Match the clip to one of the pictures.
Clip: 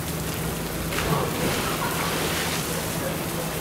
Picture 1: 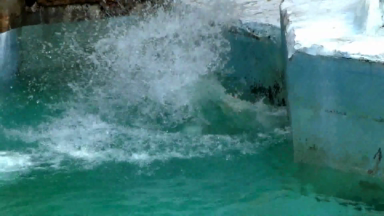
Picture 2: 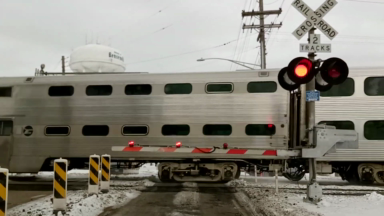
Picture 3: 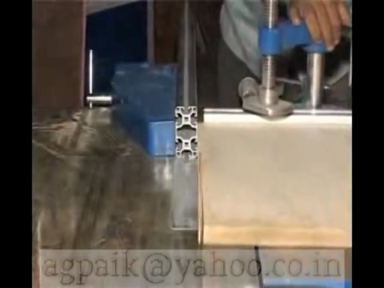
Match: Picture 1